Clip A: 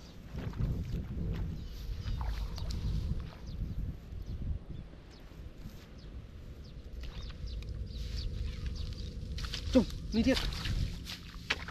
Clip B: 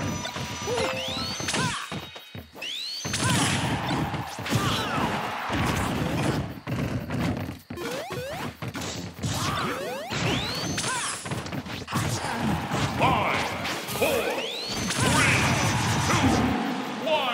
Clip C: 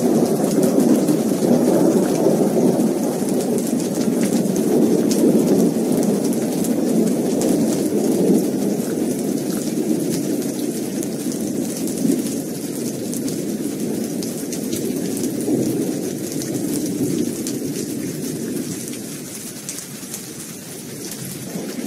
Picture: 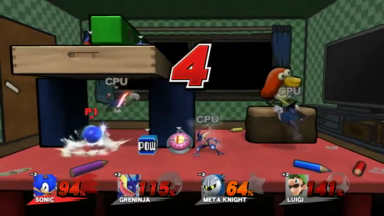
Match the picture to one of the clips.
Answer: B